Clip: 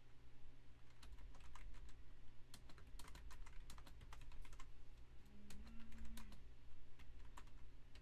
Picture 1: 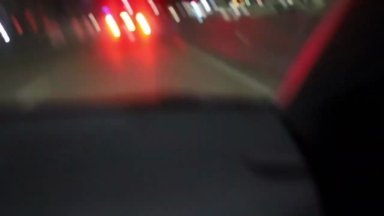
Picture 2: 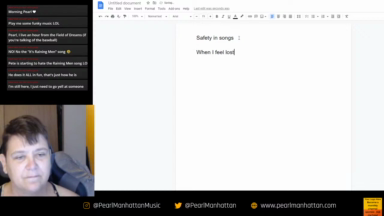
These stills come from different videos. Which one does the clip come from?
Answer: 2